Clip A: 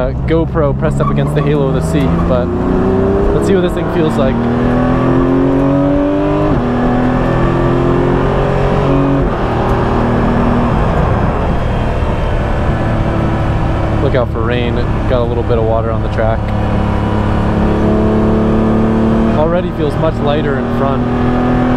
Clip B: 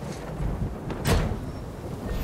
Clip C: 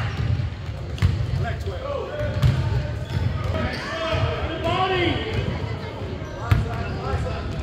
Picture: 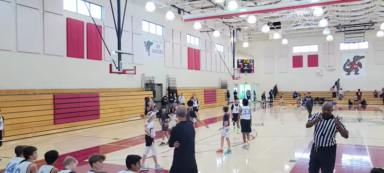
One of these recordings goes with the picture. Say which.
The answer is C